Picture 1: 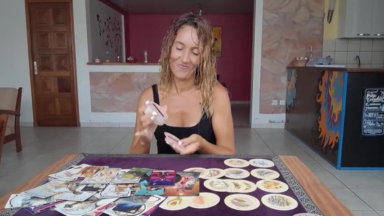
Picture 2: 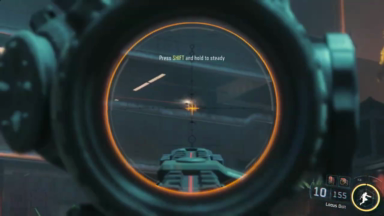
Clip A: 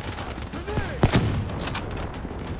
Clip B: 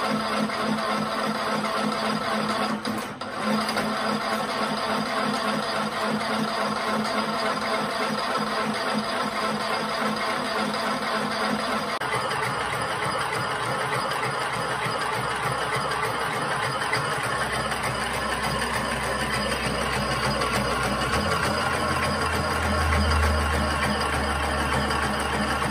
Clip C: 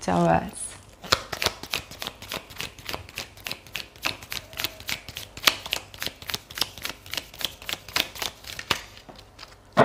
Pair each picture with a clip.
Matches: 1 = C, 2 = A